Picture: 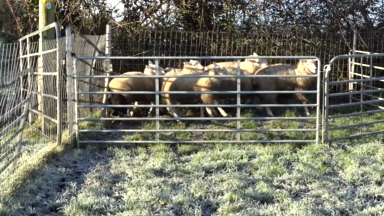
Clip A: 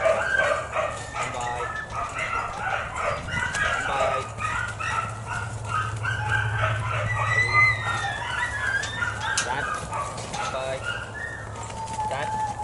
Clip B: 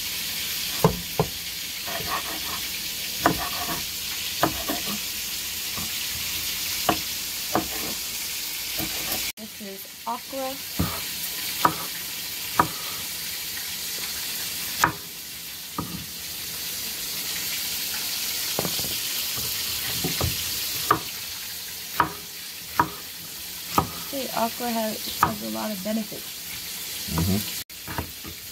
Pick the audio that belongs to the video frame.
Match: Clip A